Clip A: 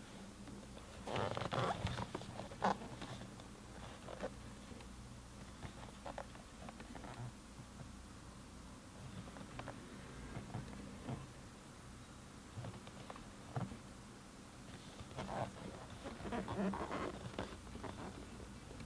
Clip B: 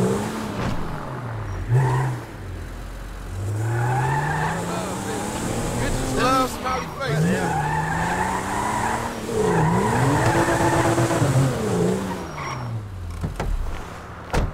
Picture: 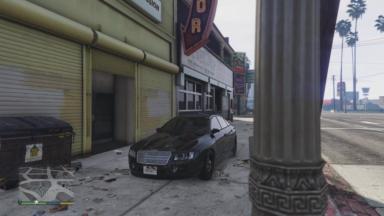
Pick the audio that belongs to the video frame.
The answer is B